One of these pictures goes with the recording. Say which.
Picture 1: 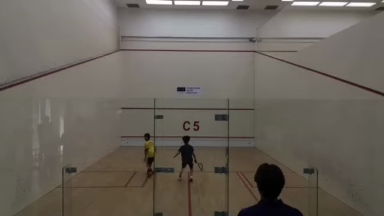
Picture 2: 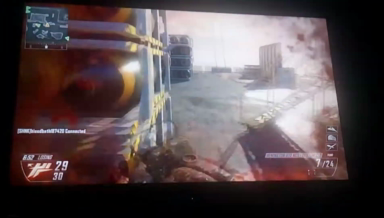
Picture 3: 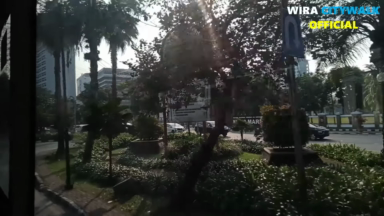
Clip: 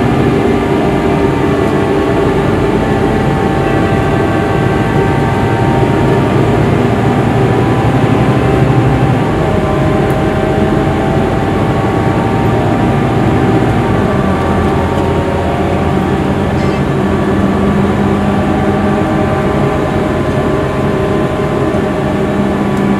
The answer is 3